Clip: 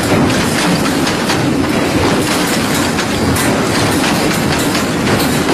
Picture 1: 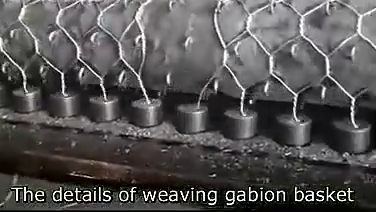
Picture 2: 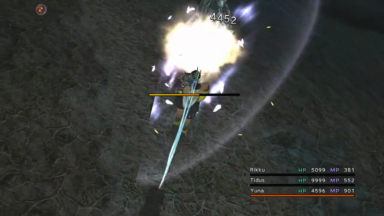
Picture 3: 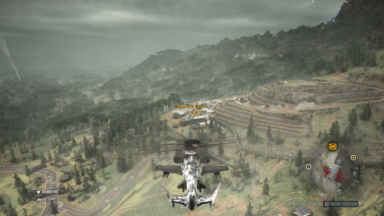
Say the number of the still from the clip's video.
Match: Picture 1